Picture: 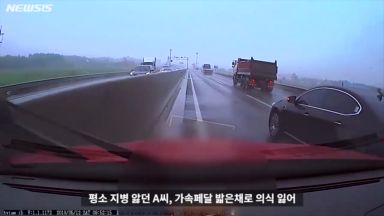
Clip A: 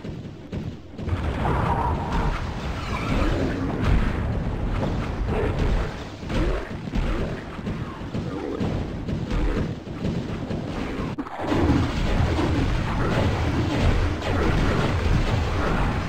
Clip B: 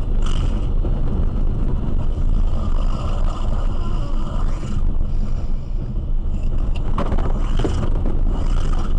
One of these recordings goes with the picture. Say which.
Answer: B